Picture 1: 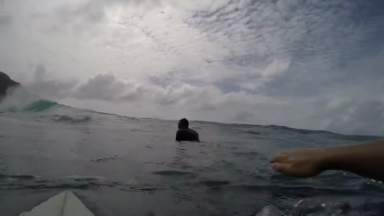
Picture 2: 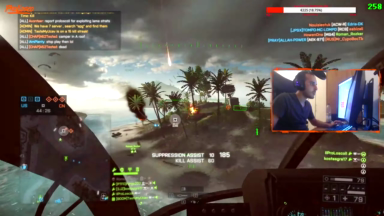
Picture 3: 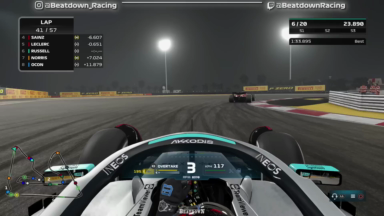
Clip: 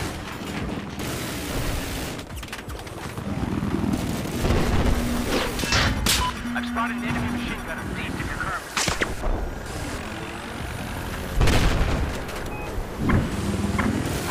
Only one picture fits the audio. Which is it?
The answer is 2